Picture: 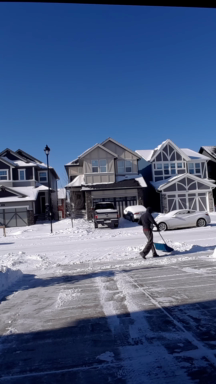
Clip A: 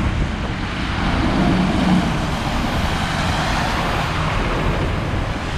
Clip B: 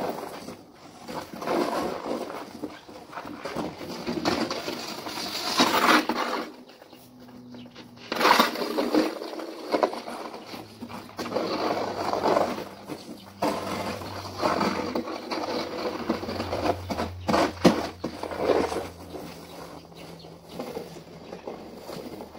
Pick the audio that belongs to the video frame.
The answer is B